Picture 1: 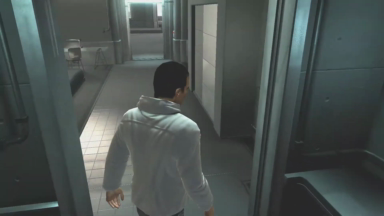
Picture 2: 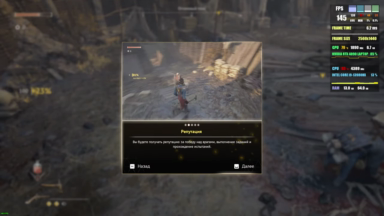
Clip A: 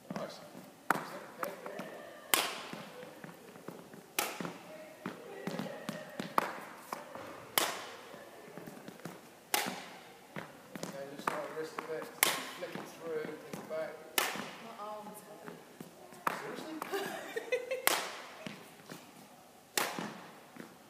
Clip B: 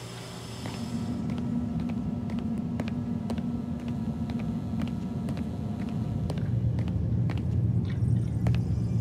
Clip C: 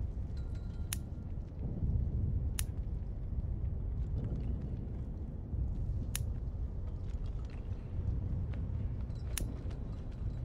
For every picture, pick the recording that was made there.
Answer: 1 B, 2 C